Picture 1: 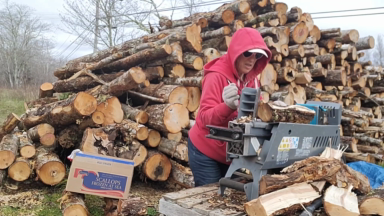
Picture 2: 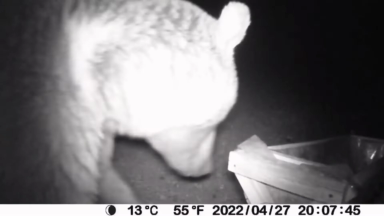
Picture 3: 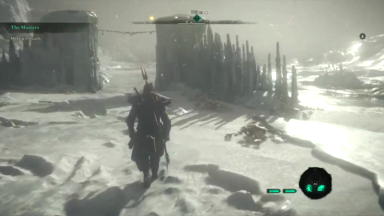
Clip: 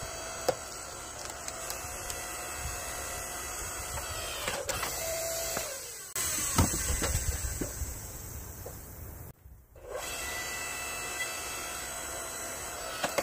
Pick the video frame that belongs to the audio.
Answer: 1